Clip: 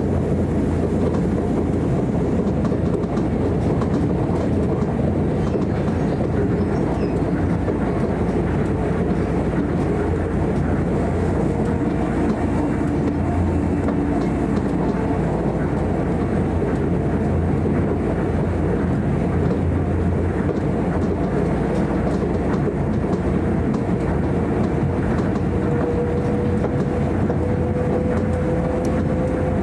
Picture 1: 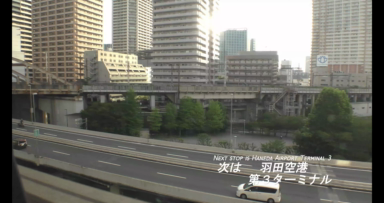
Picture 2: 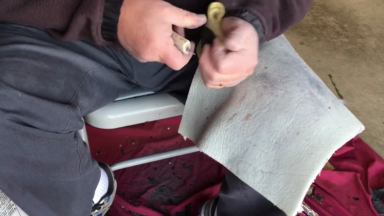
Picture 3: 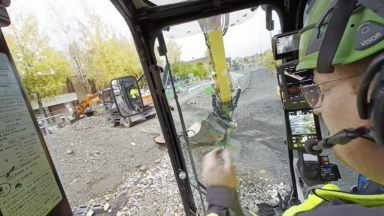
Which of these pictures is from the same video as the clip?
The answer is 1